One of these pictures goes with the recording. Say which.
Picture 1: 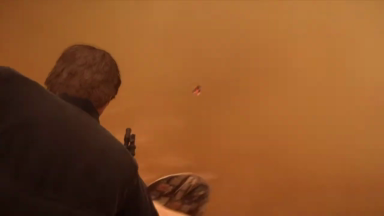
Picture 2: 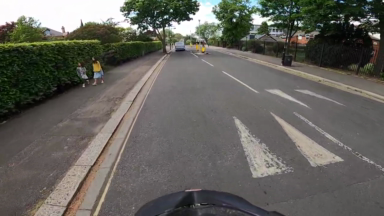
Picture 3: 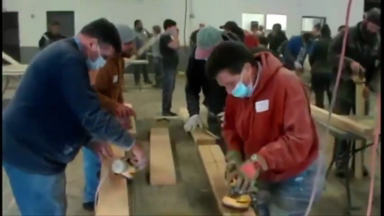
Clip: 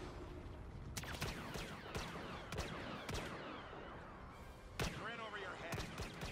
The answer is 1